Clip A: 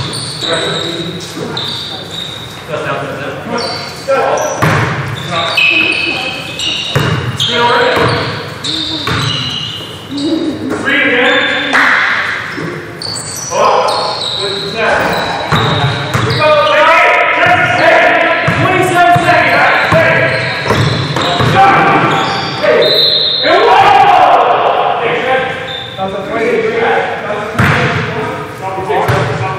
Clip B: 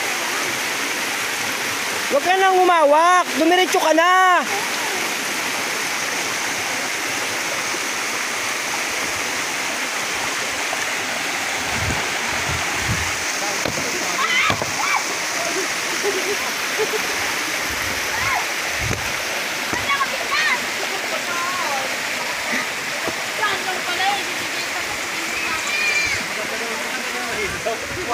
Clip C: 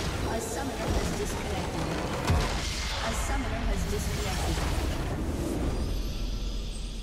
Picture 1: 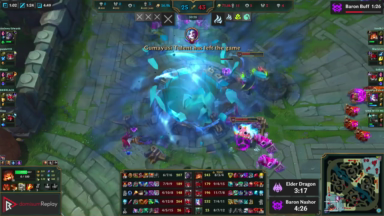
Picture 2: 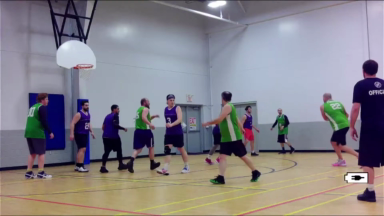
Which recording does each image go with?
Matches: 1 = C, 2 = A